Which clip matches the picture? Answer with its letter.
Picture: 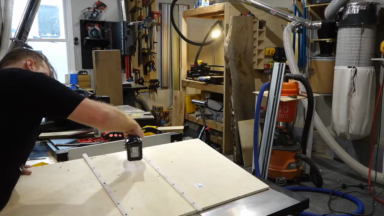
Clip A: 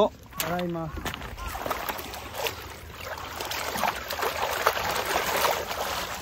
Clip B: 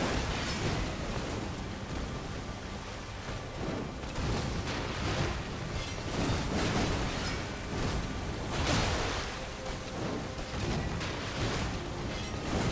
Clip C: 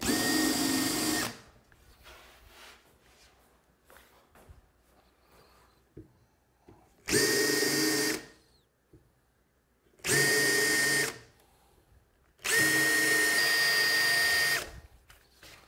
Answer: C